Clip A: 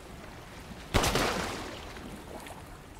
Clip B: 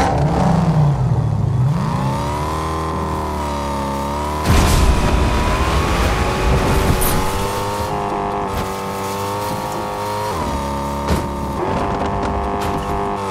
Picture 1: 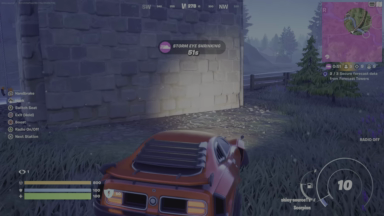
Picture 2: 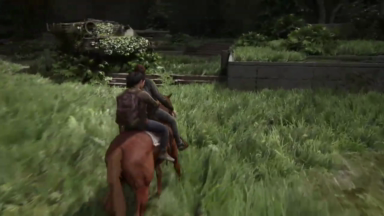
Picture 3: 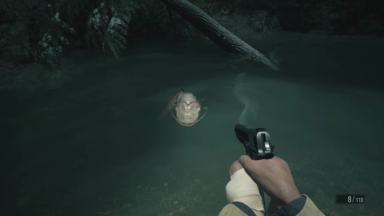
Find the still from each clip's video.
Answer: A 3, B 1